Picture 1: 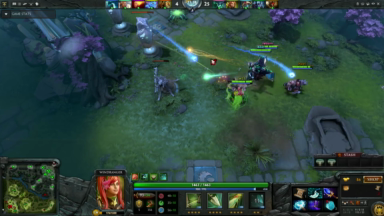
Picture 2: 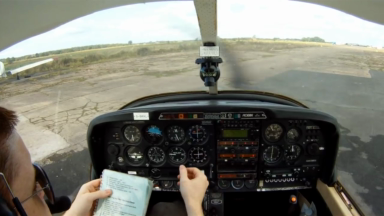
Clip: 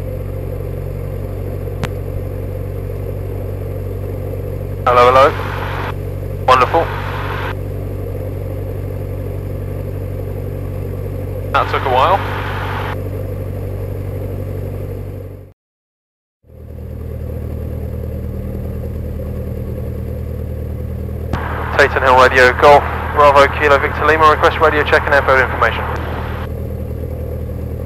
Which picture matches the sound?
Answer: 2